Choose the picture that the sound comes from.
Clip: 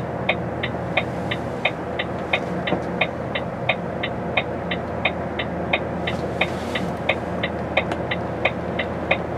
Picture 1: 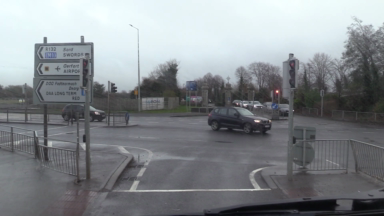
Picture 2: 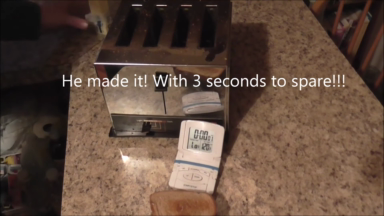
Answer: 1